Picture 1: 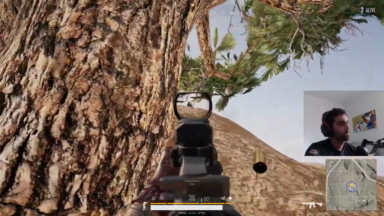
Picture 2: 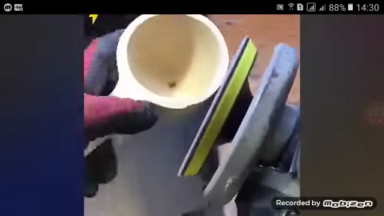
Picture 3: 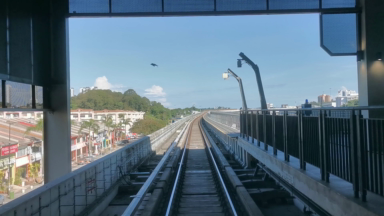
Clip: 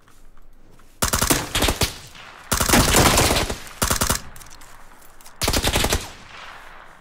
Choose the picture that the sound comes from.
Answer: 1